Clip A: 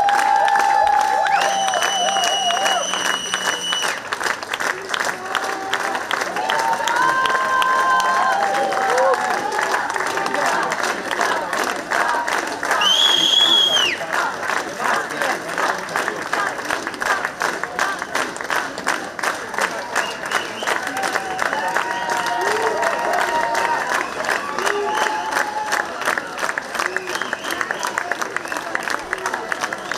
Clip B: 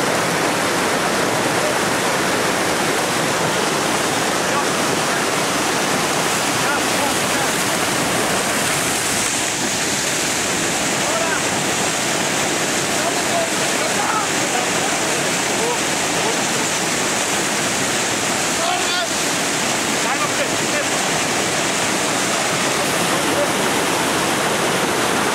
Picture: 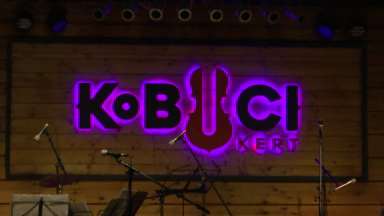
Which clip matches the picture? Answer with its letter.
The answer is A